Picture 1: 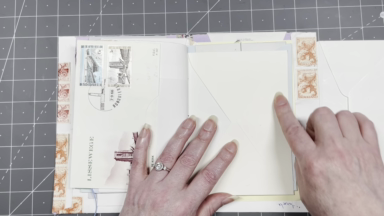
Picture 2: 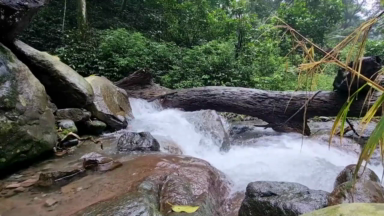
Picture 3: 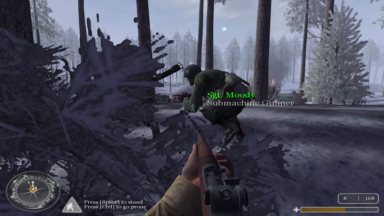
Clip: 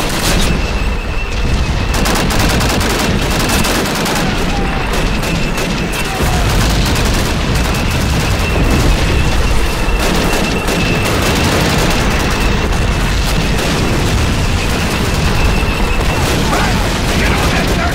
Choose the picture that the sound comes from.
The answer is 3